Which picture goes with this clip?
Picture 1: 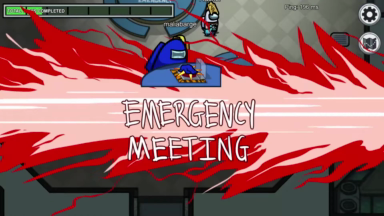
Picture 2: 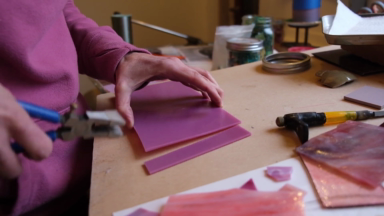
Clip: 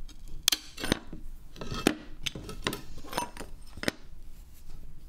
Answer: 2